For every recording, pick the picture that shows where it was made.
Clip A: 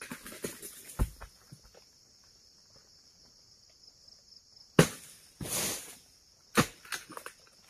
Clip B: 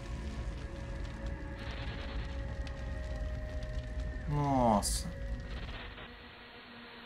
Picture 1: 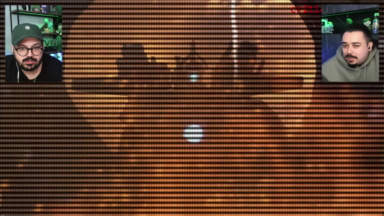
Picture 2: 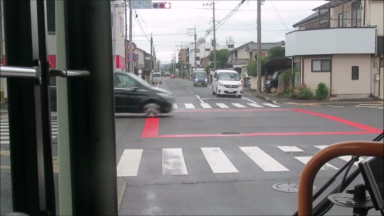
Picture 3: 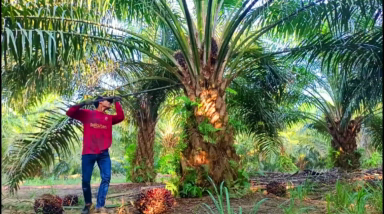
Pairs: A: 3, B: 1